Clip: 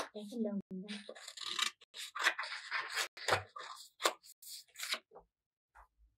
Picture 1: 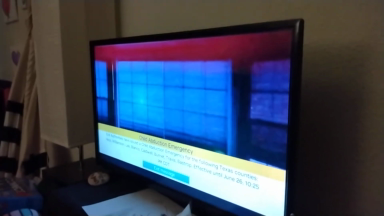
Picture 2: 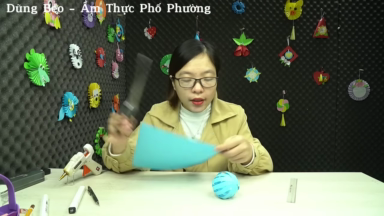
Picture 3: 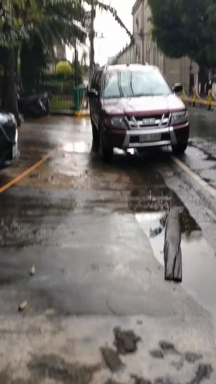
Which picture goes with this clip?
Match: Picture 2